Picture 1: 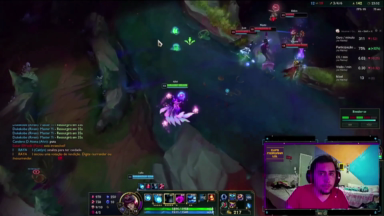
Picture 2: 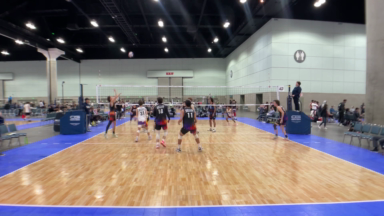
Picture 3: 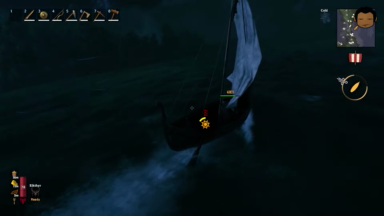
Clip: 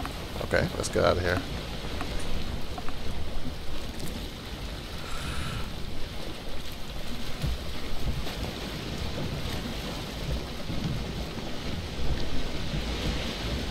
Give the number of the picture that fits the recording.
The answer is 3